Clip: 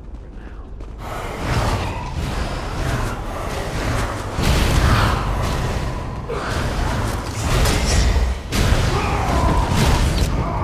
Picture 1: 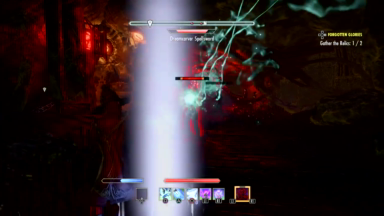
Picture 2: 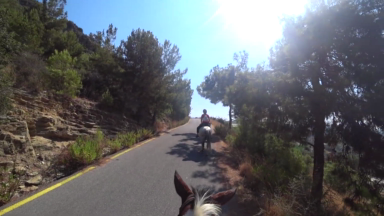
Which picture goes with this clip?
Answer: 1